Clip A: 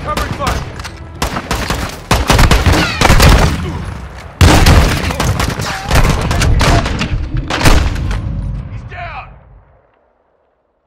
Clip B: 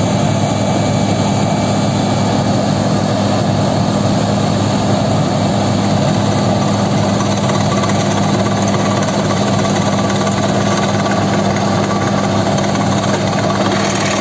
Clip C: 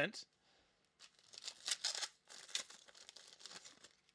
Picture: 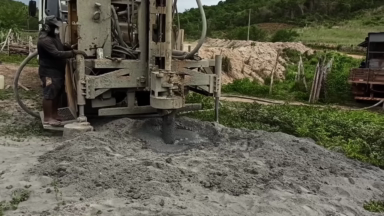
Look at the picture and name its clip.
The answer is B